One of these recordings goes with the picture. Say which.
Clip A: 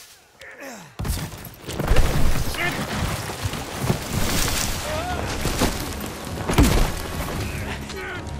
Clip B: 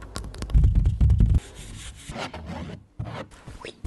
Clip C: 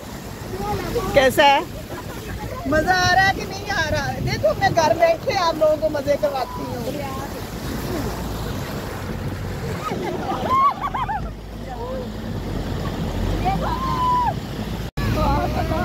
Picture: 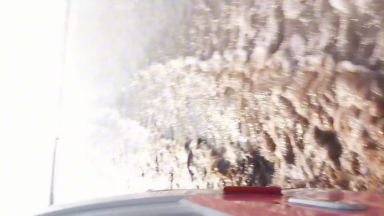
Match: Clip C